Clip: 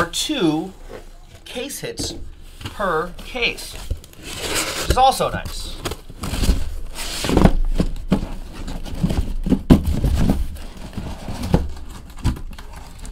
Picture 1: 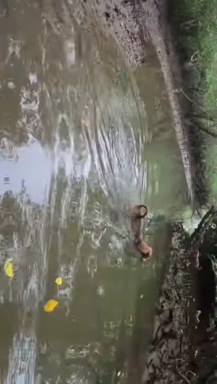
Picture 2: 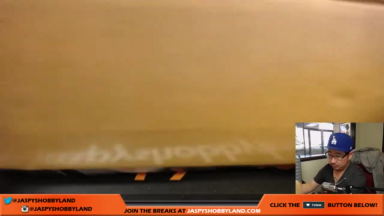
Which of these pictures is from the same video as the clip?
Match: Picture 2